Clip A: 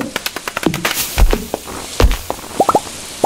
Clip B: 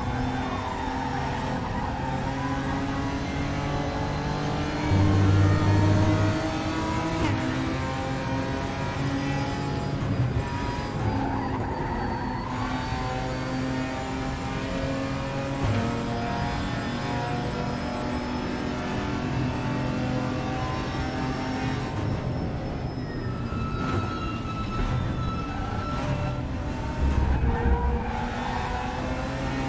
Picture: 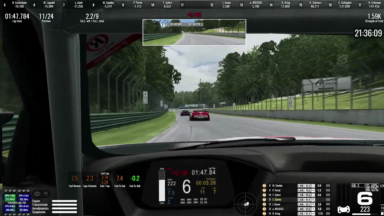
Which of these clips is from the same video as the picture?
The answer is B